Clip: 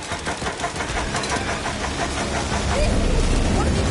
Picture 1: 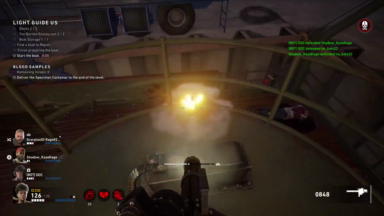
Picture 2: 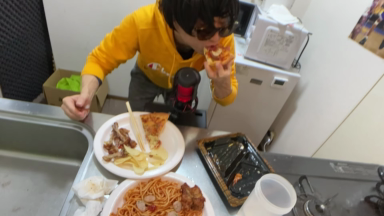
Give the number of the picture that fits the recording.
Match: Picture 1